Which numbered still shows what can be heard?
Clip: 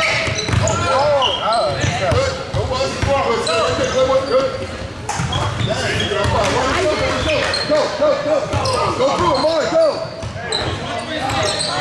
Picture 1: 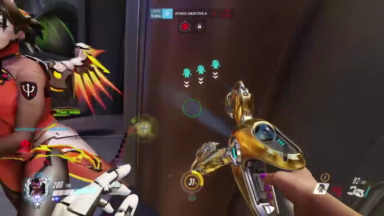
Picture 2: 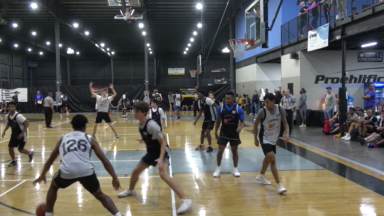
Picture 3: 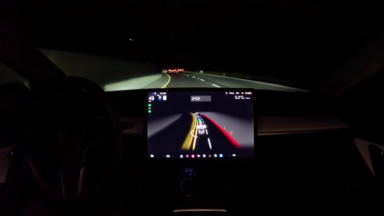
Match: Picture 2